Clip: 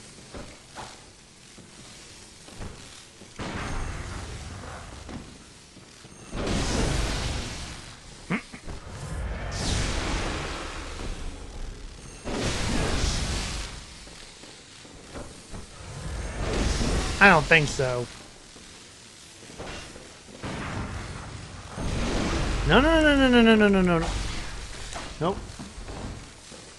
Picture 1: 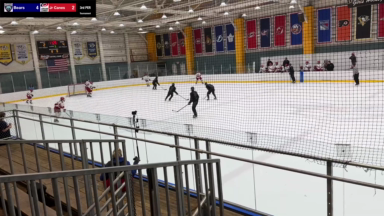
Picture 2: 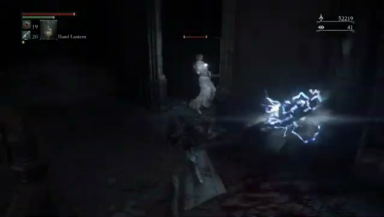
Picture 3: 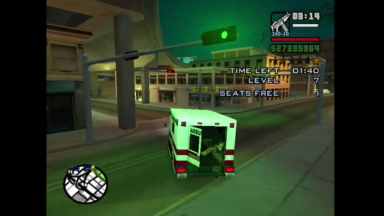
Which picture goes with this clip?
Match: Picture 2